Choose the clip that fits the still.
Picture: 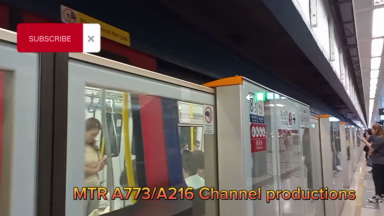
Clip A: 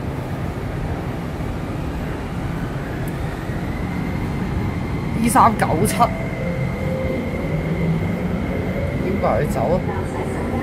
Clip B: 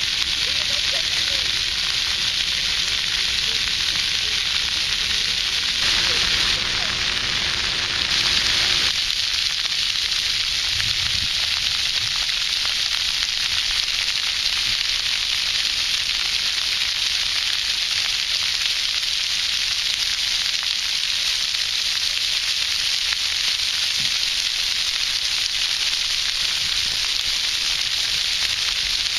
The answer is A